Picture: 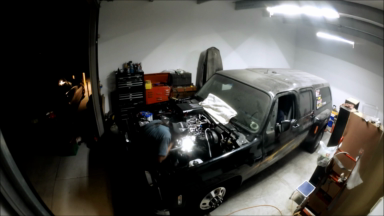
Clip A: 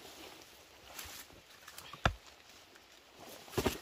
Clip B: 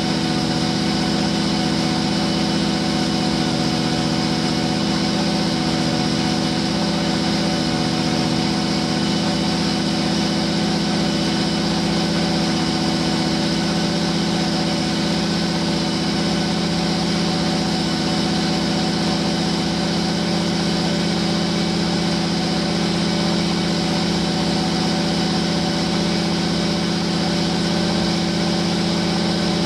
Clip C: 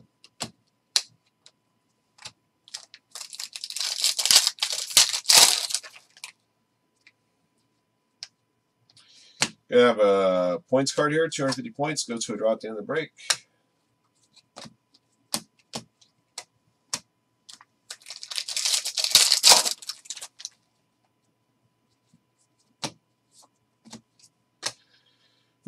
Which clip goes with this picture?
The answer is B